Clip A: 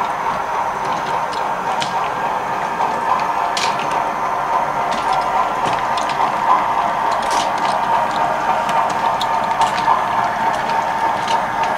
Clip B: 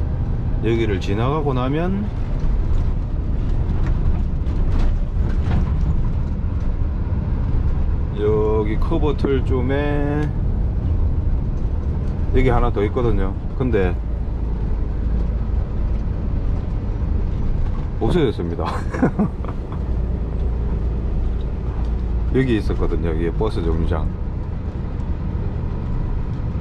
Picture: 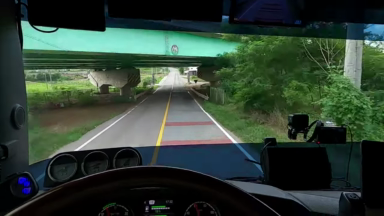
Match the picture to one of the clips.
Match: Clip B